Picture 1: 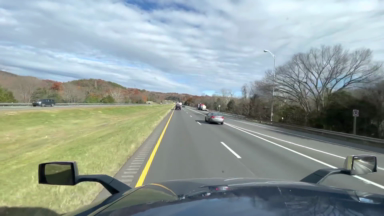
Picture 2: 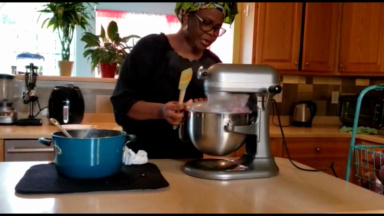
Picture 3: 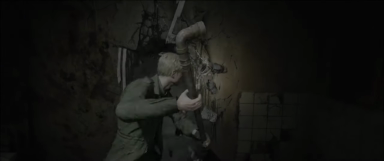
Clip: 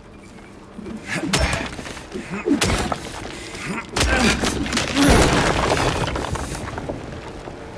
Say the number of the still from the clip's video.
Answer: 3